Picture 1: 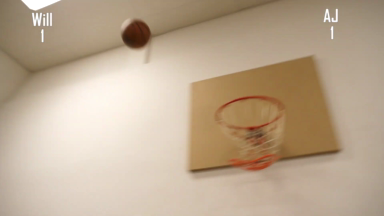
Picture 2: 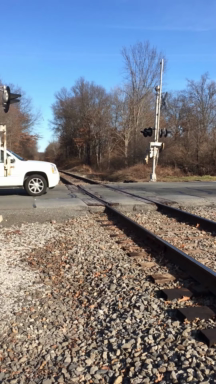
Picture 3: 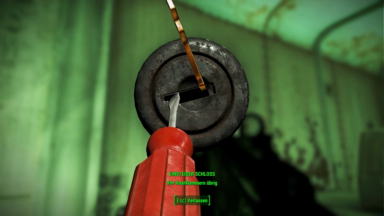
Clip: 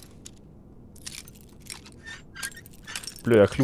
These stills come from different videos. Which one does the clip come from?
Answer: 3